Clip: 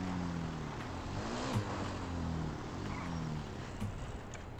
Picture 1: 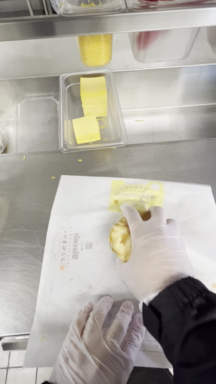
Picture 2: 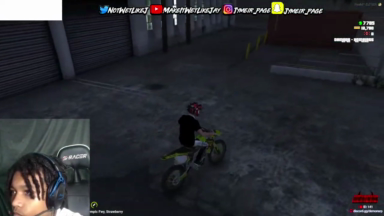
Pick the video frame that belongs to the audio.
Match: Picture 2